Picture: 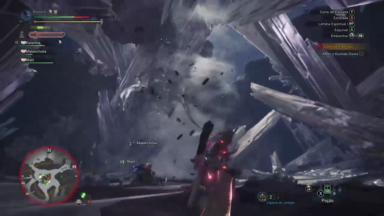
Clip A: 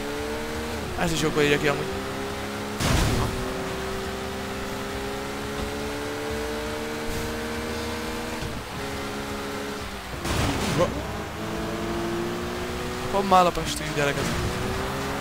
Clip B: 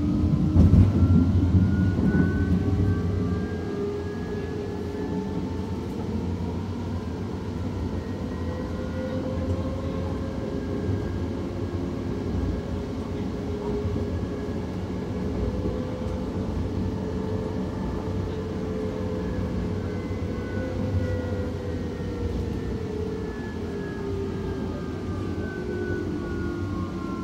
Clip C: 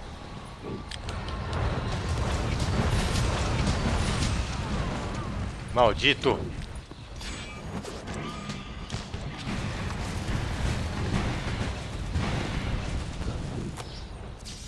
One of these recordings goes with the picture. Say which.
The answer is C